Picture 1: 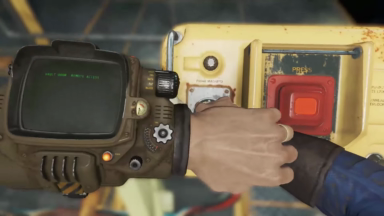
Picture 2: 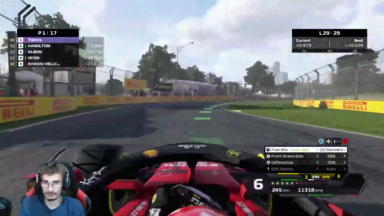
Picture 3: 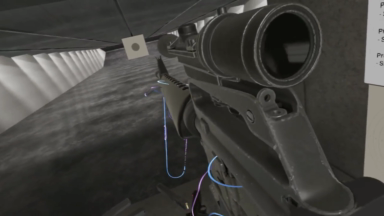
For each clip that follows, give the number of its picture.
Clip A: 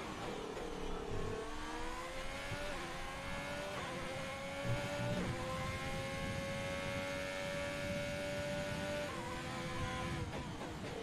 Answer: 2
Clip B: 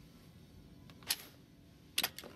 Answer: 1